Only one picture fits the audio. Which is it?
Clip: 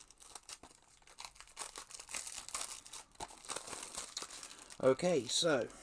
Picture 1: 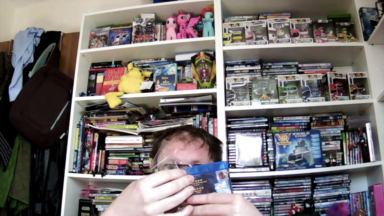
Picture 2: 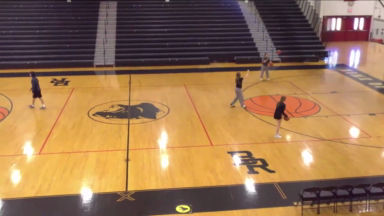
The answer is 1